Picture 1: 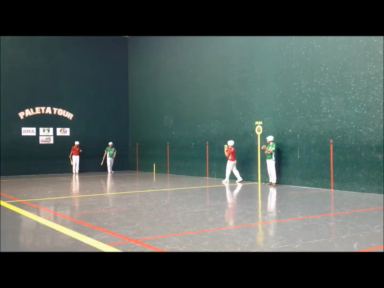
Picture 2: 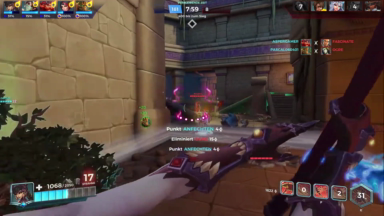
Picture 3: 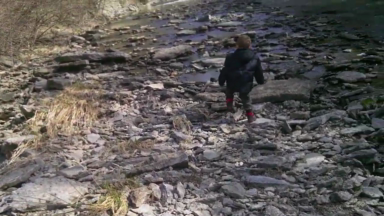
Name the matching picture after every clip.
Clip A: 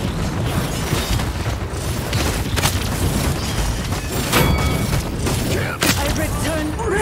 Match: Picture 2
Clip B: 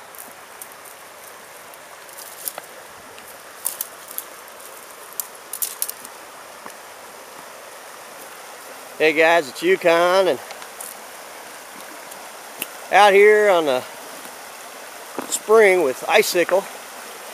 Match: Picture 3